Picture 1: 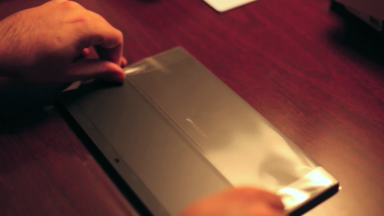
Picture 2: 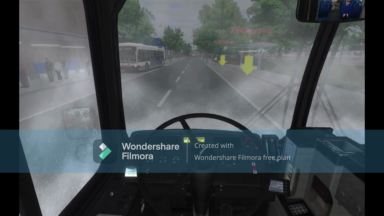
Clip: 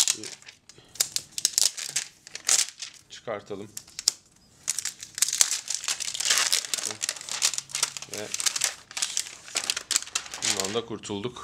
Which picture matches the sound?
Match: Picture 1